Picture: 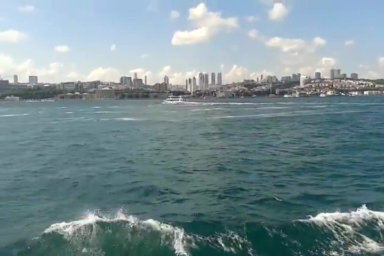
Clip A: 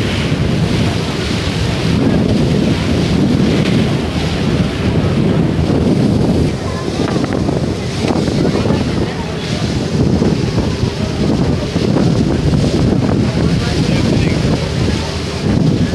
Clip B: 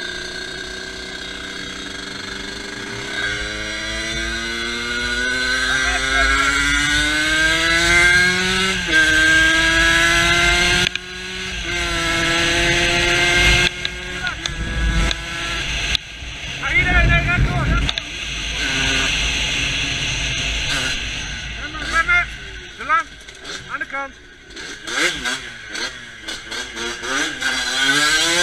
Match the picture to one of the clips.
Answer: A